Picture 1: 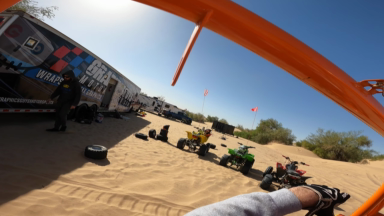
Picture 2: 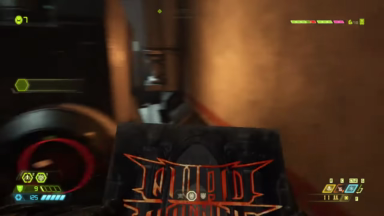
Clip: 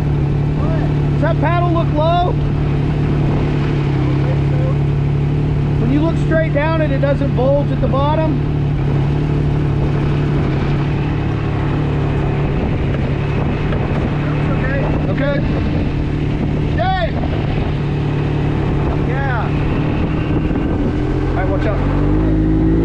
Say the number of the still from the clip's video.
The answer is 1